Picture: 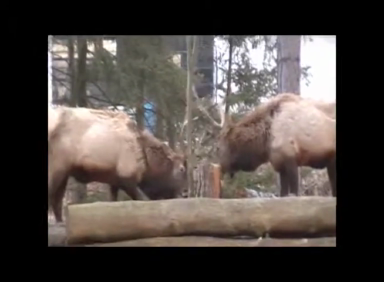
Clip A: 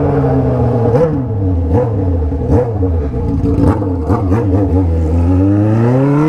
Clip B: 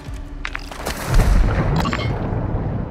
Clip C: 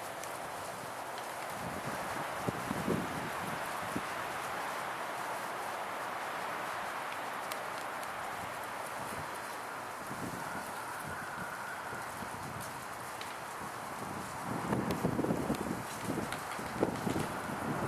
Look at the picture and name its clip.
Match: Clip C